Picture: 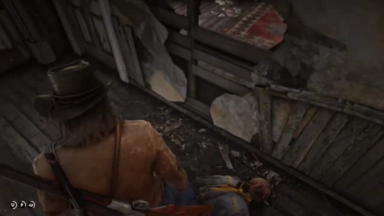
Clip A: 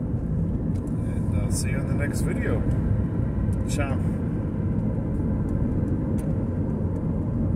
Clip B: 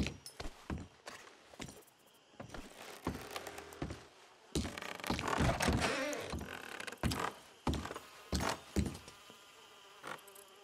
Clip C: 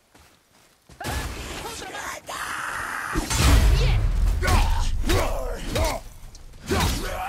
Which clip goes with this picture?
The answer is B